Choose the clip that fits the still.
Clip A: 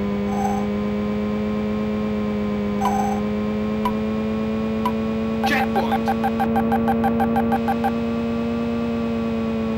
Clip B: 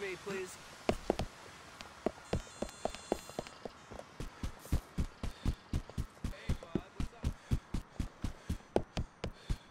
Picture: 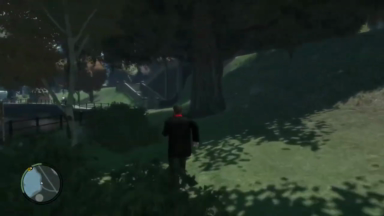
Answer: B